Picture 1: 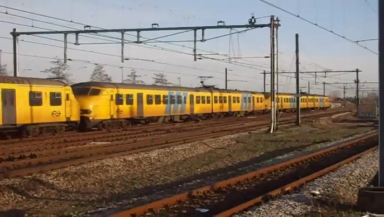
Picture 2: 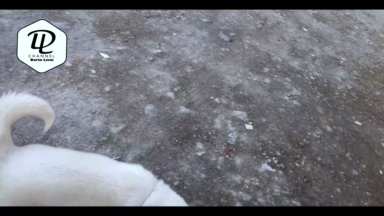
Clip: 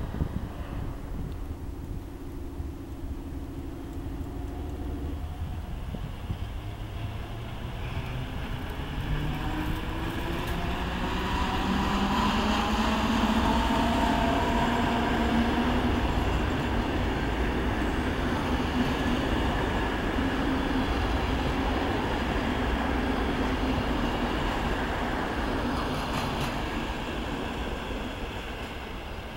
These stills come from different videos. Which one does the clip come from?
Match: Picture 1